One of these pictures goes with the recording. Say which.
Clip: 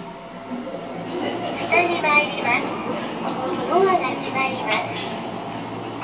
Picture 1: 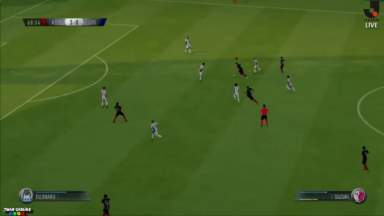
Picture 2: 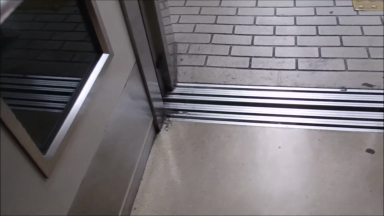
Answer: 2